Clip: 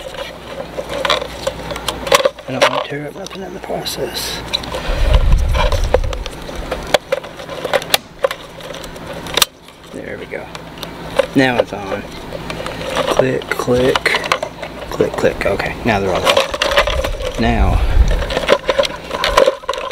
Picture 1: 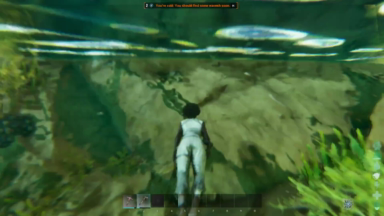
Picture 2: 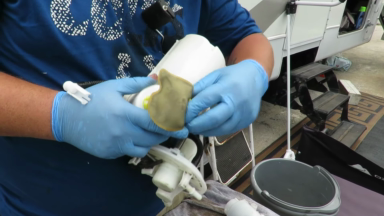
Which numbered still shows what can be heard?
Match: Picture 2